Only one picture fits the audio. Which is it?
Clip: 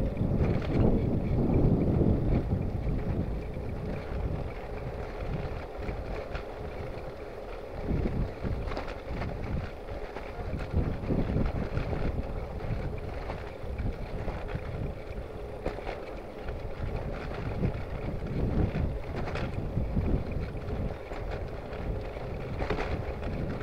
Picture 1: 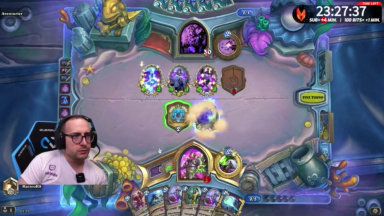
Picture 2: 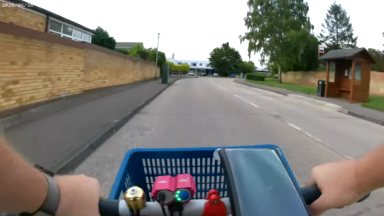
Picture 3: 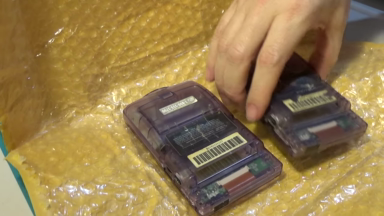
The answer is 2